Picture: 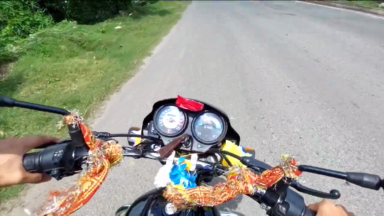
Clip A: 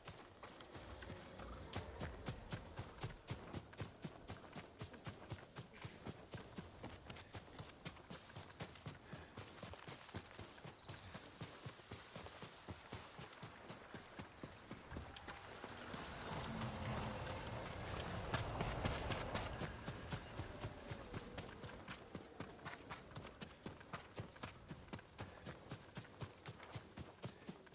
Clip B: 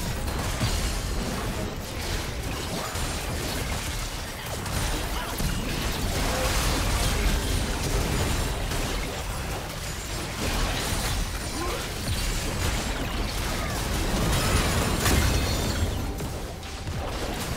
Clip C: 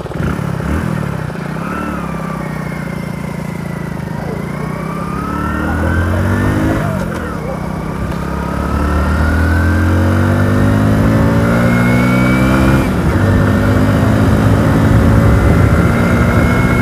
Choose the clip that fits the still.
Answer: C